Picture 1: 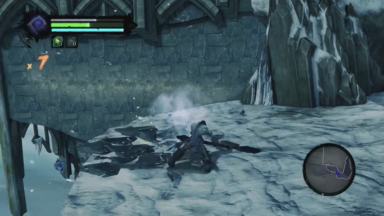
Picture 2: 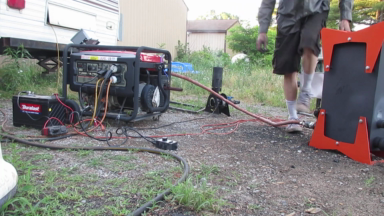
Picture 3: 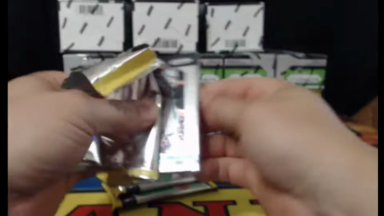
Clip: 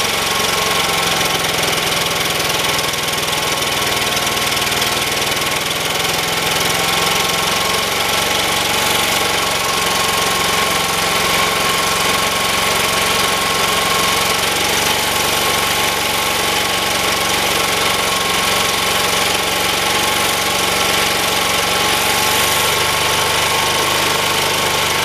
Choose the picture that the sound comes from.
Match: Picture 2